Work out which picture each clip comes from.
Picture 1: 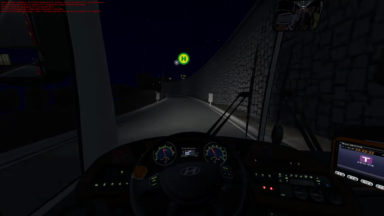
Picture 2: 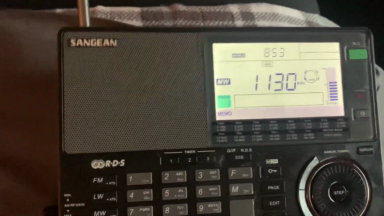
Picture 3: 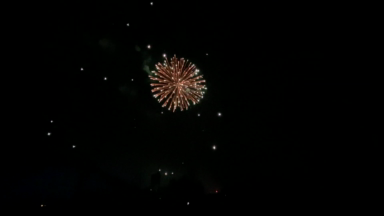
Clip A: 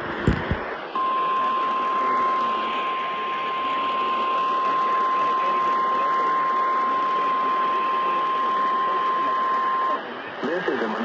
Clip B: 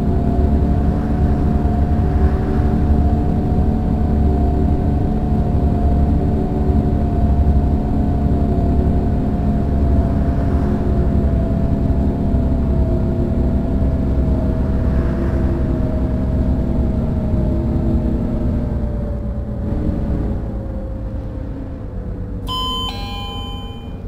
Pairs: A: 2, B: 1